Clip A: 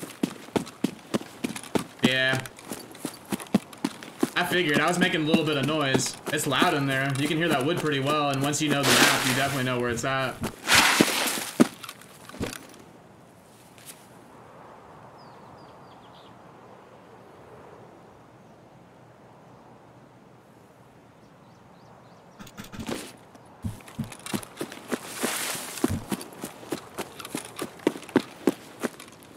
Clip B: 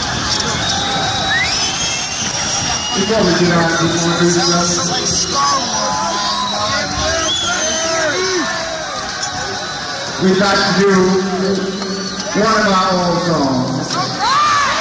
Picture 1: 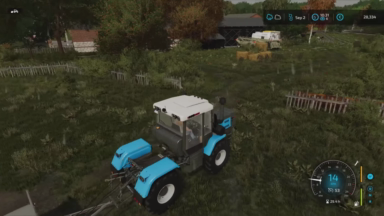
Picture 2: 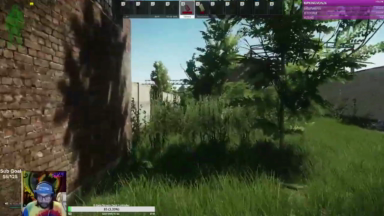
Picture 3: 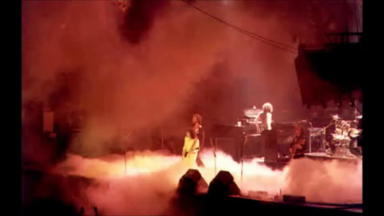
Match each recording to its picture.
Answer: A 2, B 3